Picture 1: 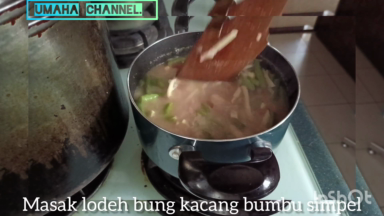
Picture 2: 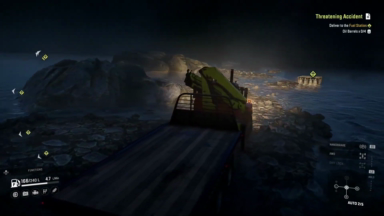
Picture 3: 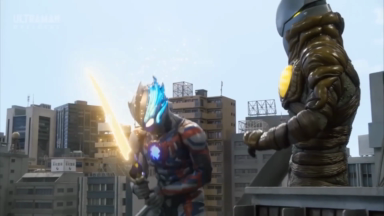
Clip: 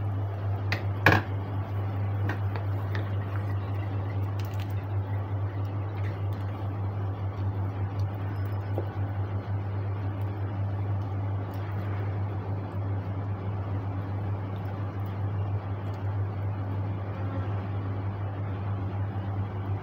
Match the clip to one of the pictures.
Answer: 1